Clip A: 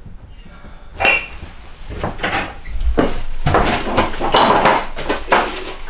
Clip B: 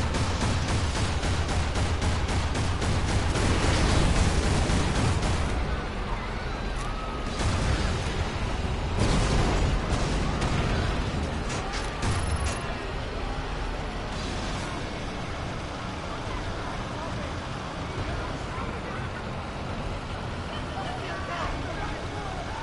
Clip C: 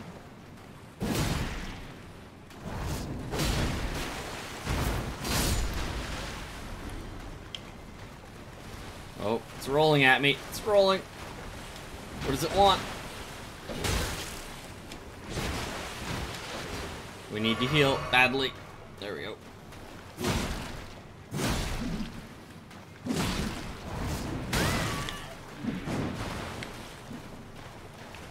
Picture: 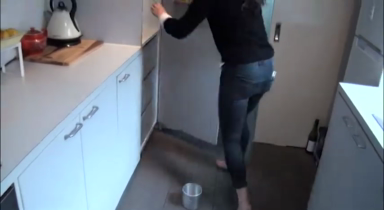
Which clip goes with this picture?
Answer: A